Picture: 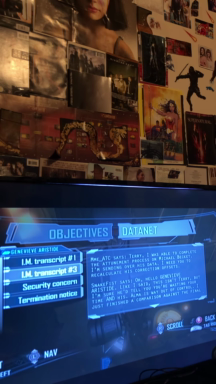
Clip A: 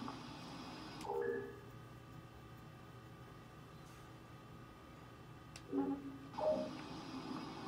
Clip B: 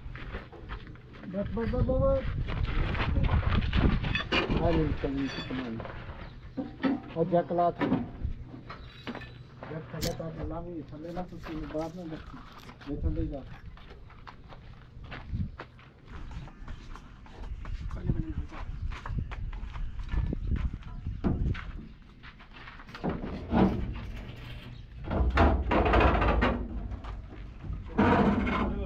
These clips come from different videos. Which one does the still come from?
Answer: A